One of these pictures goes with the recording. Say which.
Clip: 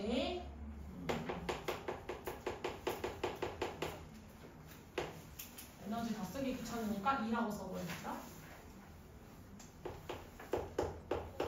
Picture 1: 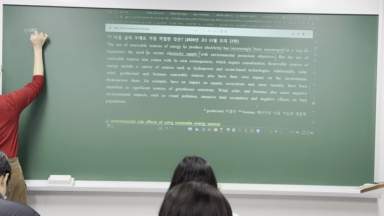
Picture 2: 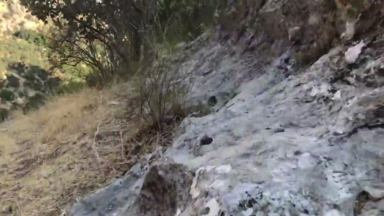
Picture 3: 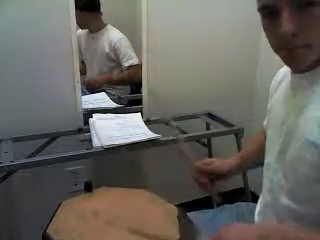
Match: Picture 1